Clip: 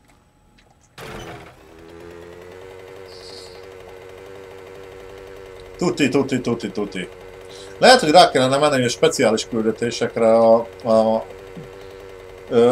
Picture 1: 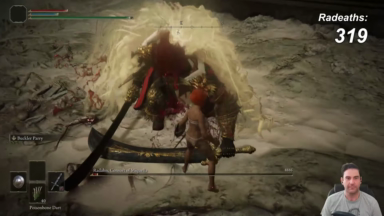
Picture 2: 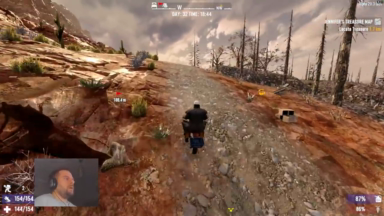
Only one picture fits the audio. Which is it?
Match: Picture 2